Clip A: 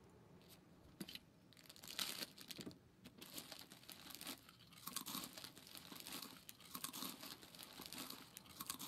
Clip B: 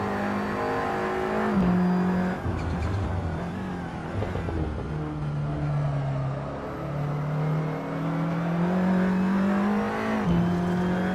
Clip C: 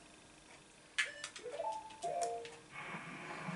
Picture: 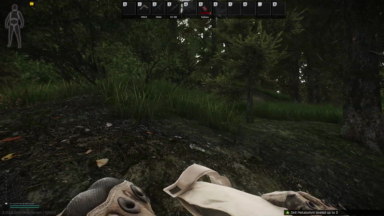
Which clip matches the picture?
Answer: A